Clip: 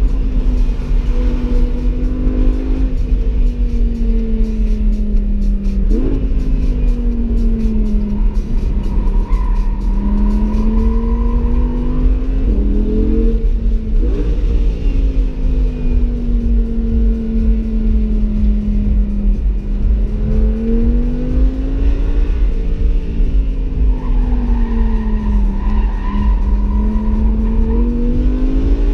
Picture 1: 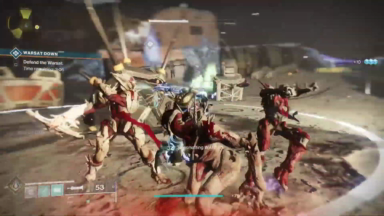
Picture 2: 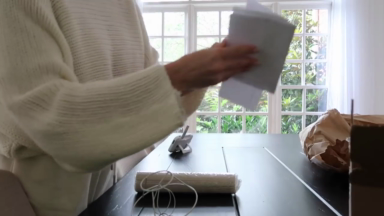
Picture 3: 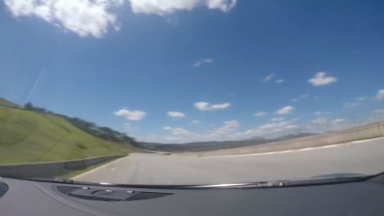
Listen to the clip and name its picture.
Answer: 3